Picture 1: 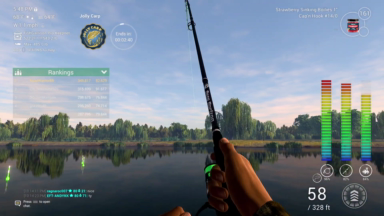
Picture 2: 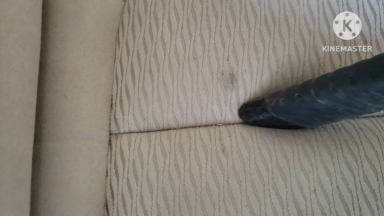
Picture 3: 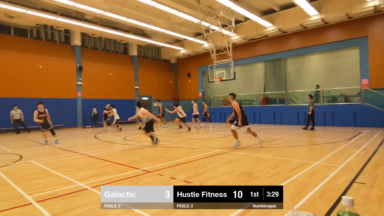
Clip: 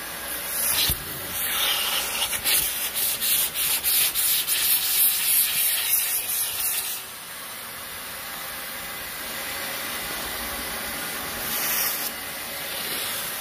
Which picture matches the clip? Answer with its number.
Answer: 2